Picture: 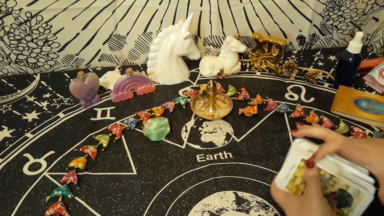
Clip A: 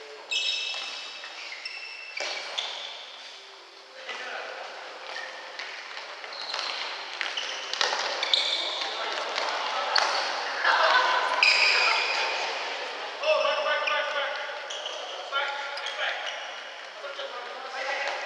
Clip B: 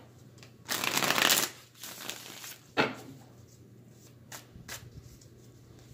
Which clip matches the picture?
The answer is B